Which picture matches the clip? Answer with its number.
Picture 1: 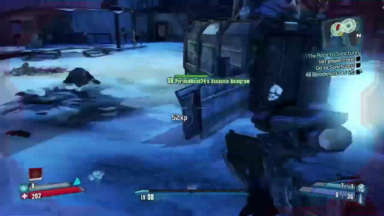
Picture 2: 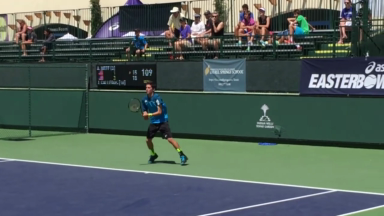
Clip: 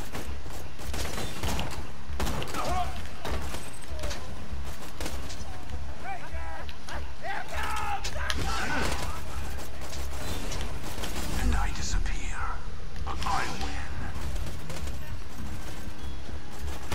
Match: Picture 1